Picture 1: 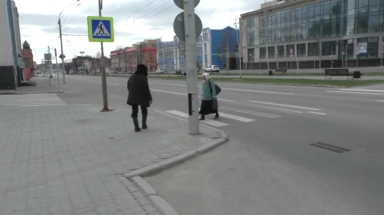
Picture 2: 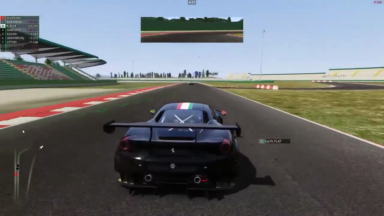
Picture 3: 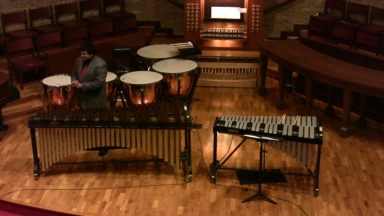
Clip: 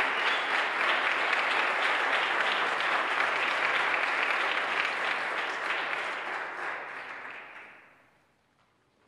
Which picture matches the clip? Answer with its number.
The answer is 3